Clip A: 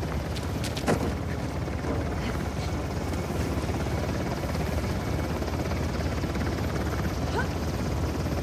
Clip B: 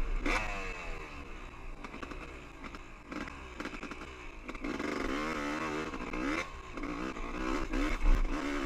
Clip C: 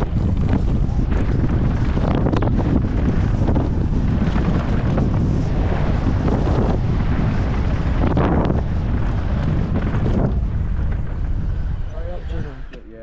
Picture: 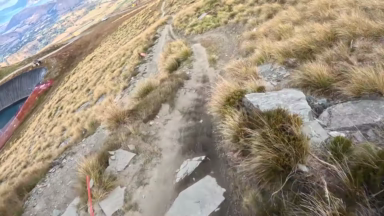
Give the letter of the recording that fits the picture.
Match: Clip C